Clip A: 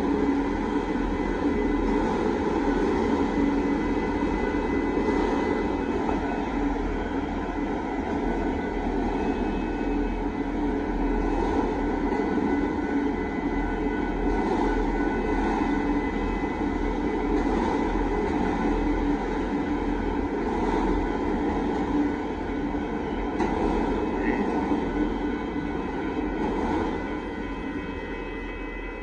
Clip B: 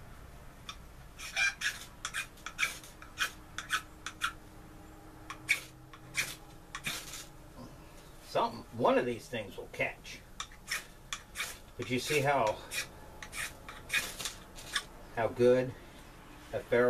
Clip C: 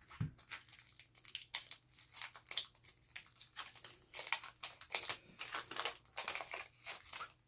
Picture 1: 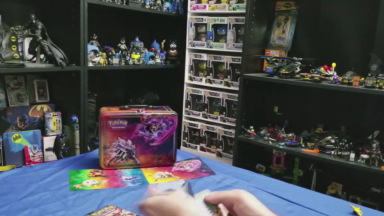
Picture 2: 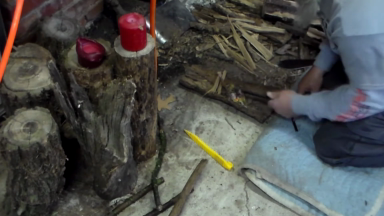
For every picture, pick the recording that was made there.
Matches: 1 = C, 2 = B